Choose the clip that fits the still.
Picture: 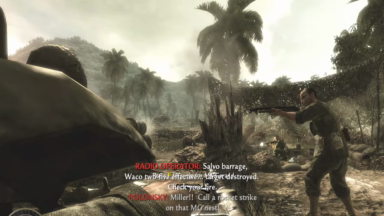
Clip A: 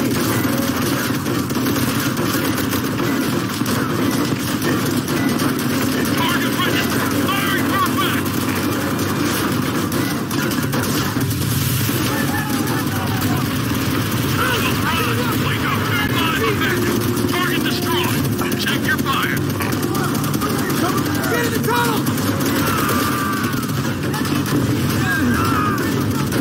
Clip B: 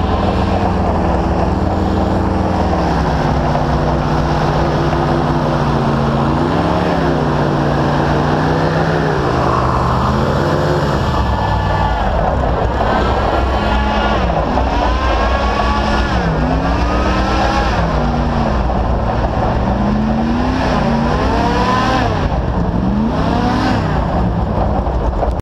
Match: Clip A